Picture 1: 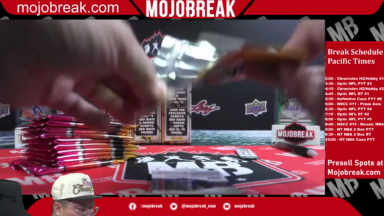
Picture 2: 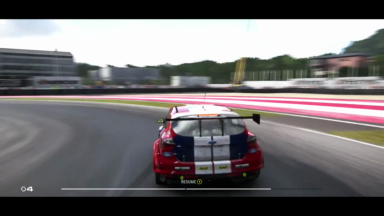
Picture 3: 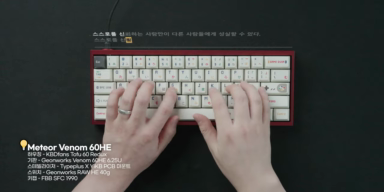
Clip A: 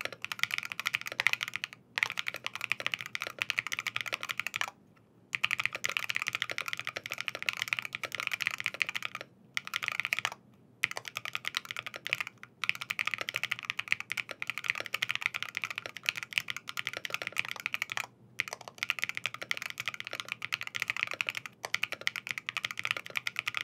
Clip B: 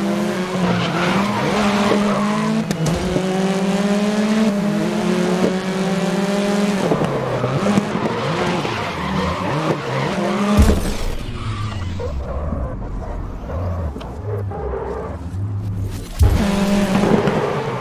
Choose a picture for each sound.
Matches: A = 3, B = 2